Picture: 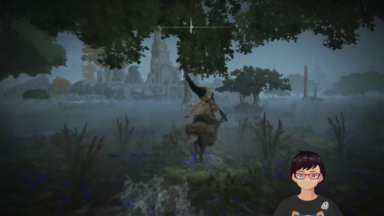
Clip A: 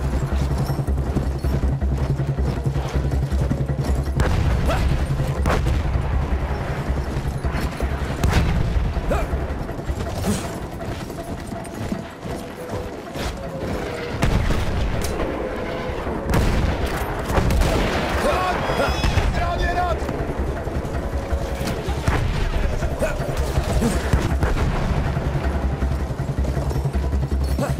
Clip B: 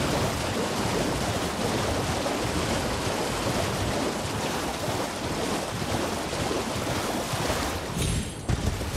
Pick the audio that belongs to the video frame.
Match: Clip B